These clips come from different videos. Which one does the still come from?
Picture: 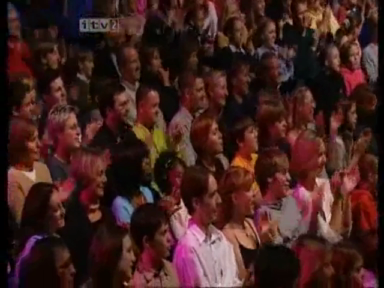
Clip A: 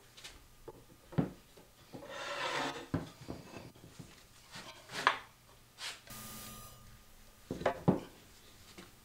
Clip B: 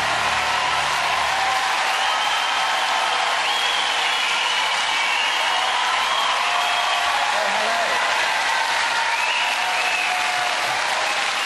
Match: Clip B